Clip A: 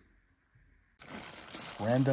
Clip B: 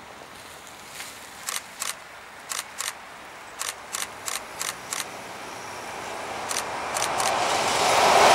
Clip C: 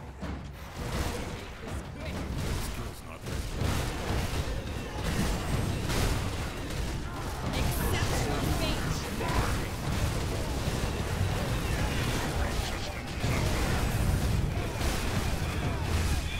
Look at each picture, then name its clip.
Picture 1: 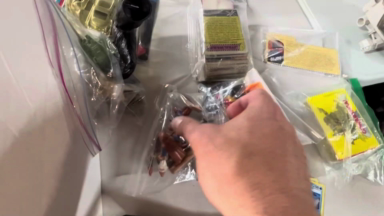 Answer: A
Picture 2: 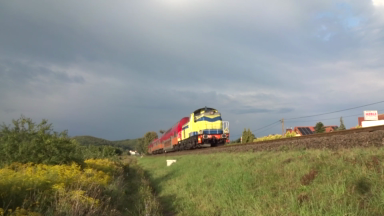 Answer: B